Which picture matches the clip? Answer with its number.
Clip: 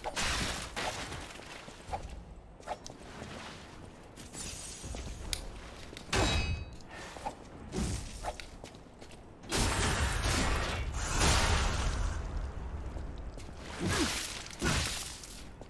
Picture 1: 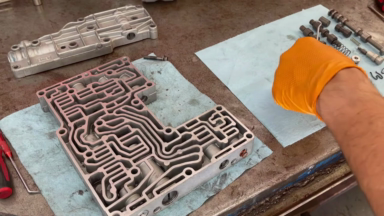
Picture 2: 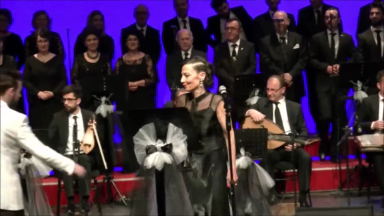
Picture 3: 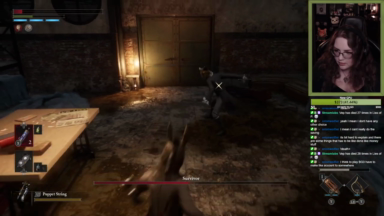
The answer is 3